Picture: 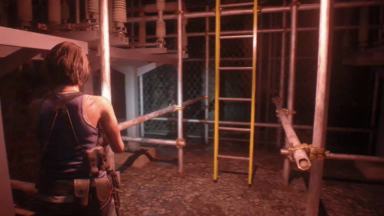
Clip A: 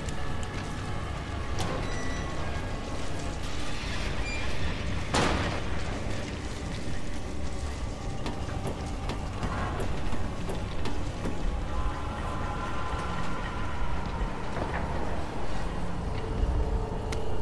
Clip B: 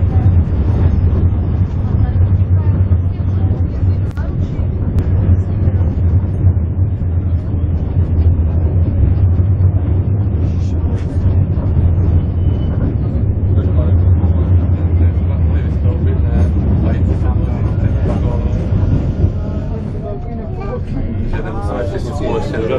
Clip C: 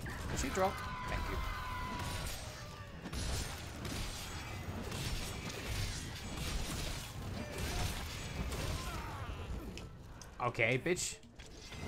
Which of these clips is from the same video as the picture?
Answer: A